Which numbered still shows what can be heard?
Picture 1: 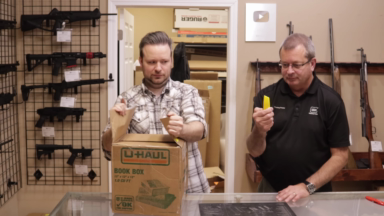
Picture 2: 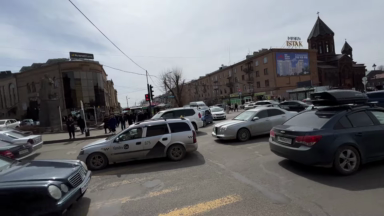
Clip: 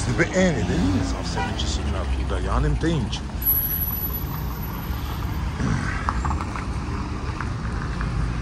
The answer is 2